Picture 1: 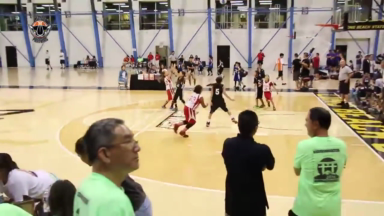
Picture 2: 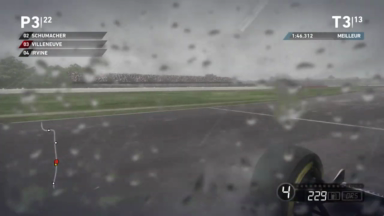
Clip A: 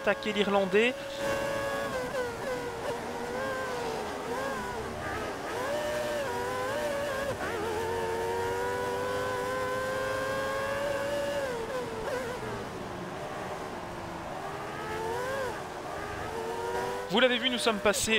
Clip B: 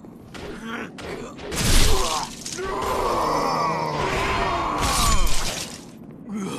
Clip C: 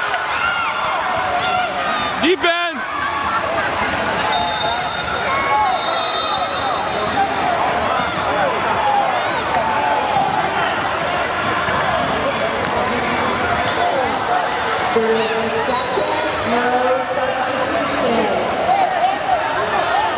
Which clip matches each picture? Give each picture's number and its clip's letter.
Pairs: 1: C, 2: A